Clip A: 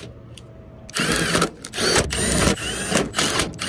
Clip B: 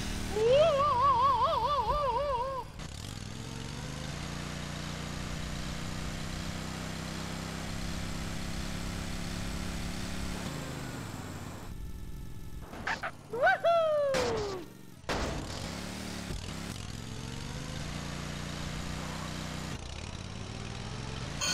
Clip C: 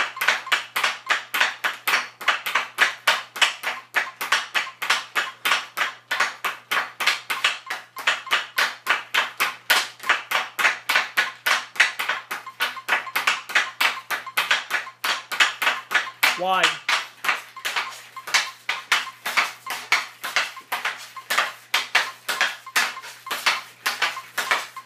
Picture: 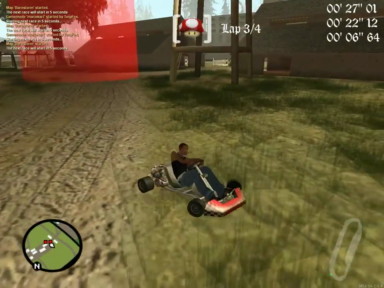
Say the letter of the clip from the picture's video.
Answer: B